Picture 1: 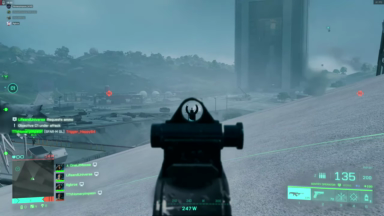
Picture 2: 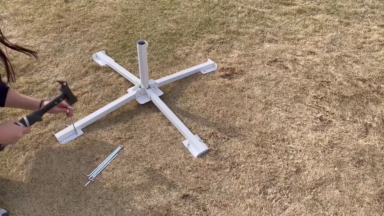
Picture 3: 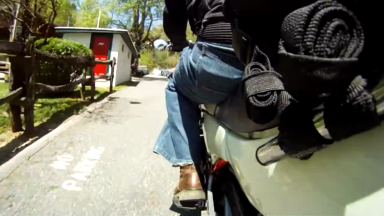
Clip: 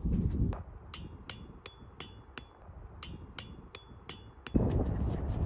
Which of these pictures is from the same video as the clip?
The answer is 2